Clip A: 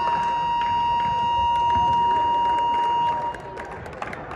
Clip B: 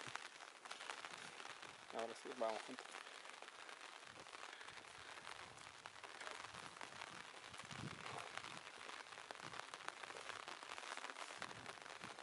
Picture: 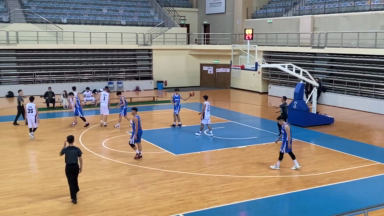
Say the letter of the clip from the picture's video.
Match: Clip A